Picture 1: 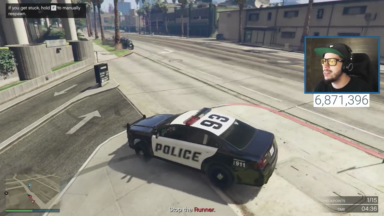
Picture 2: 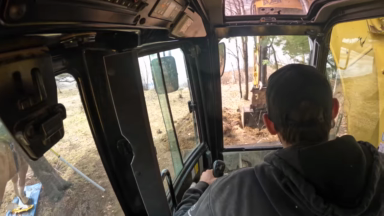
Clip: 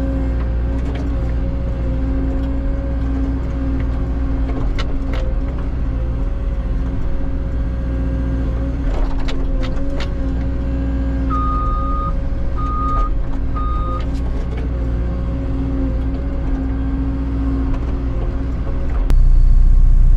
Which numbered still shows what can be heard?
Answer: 2